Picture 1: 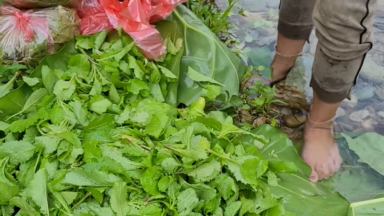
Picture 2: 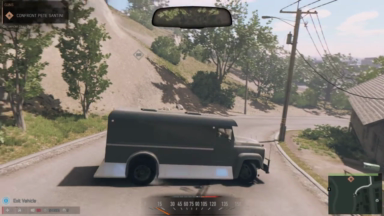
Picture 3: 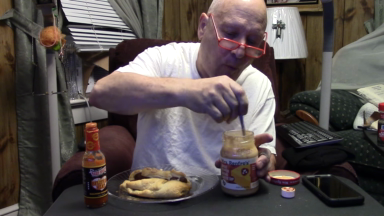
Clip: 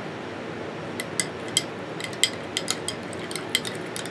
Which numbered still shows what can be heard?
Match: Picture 3